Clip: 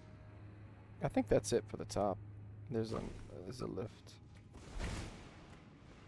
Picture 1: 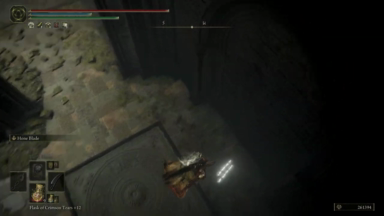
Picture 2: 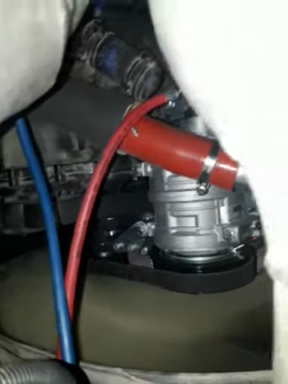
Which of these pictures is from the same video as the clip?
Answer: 1